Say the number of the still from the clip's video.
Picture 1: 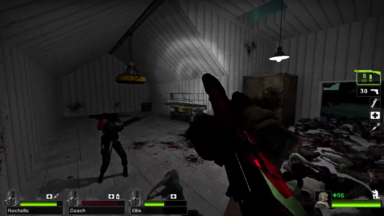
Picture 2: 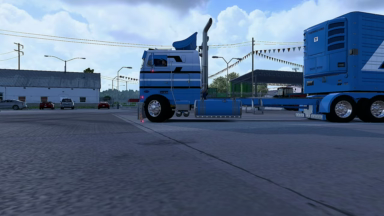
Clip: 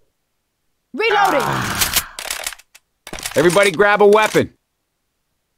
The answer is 1